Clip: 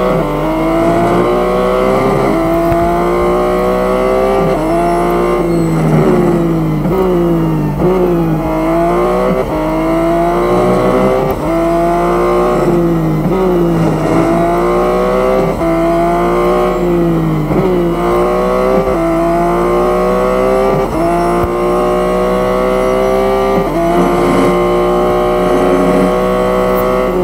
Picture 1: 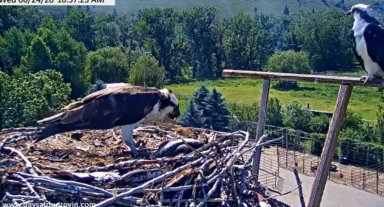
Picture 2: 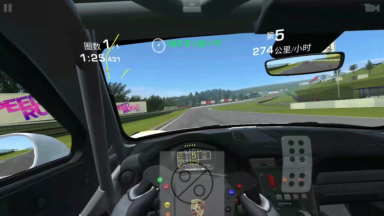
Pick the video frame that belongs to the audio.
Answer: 2